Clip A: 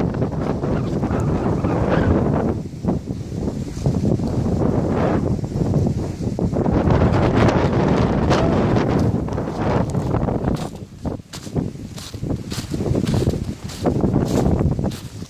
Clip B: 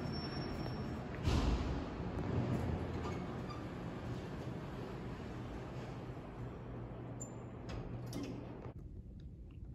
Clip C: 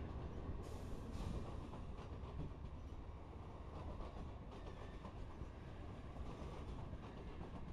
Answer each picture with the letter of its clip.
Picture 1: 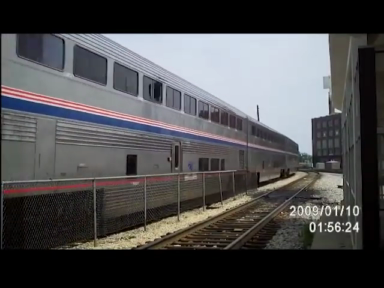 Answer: C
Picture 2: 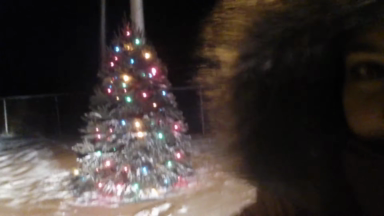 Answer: A